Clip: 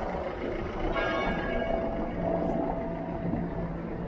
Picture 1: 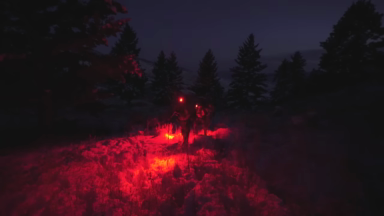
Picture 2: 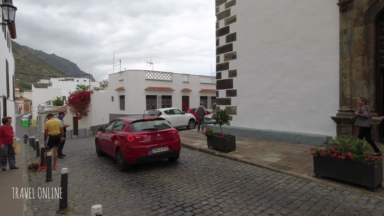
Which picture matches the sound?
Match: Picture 2